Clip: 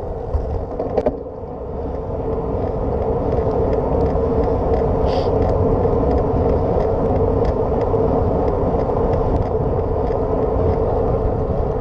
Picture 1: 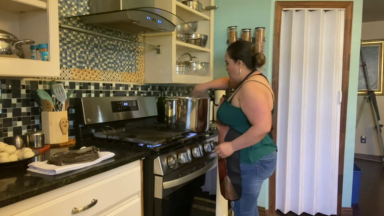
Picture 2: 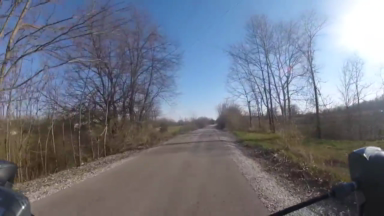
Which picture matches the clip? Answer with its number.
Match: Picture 2